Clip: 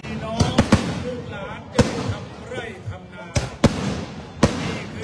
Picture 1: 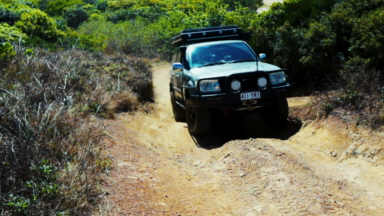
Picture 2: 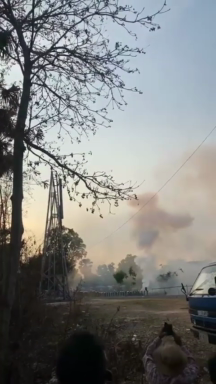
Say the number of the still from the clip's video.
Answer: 2